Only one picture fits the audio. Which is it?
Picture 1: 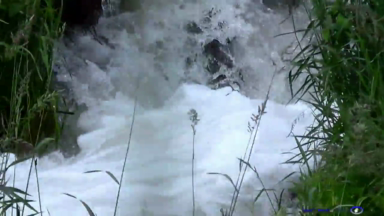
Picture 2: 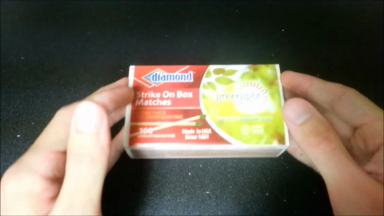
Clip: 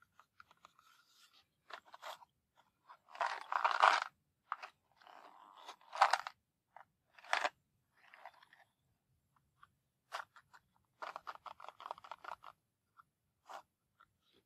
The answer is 2